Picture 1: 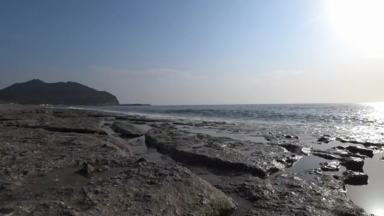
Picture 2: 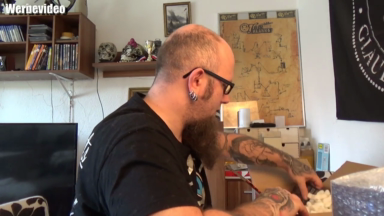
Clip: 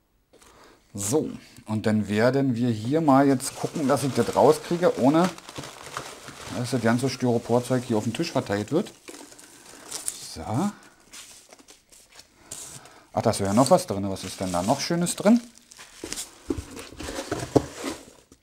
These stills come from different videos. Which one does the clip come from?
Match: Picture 2